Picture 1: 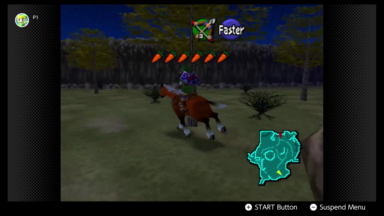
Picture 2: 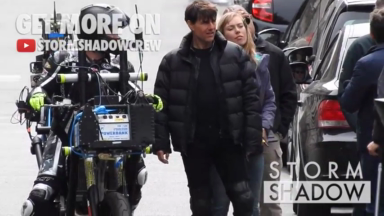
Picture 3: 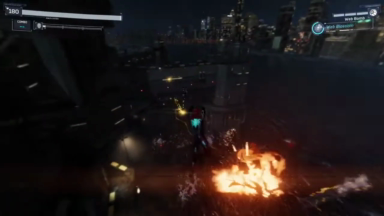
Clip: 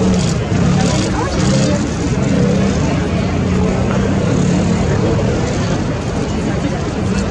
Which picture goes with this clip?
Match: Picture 2